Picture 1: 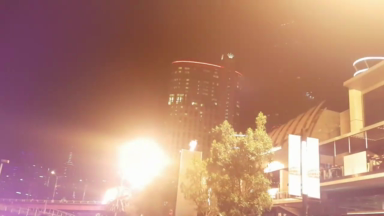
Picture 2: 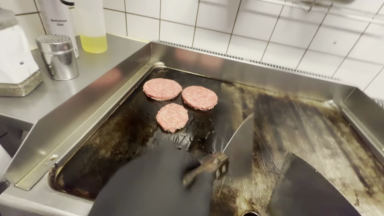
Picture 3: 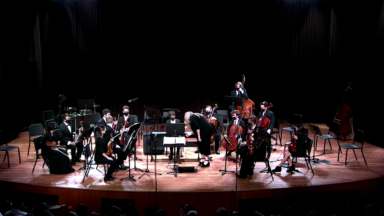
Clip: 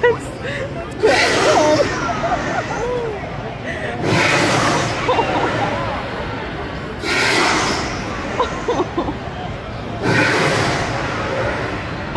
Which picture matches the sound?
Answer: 1